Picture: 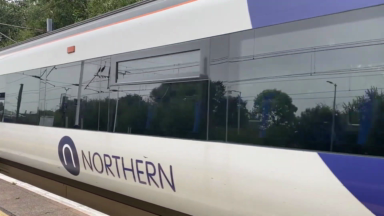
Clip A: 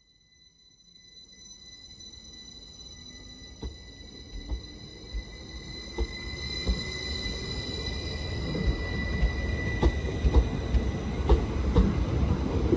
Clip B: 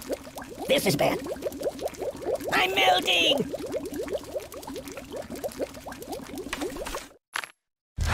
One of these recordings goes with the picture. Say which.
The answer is A